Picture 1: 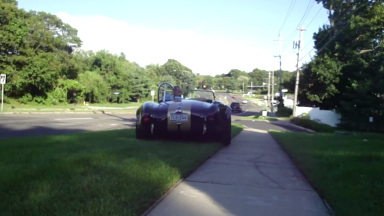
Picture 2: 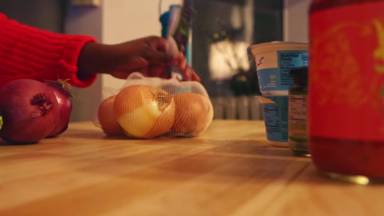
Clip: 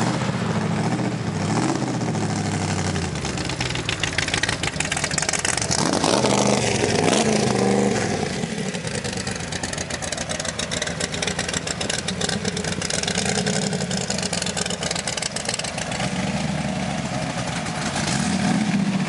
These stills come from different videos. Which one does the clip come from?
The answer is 1